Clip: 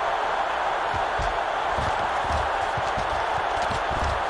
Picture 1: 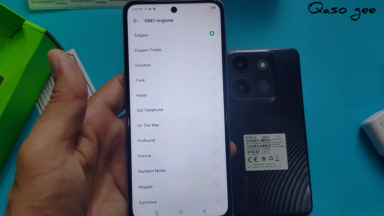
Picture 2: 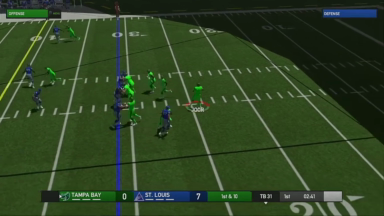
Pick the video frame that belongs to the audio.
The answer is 2